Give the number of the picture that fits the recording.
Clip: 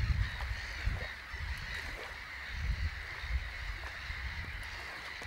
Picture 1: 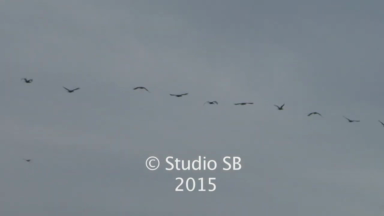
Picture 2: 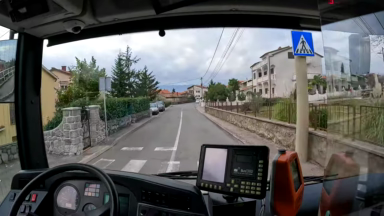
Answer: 1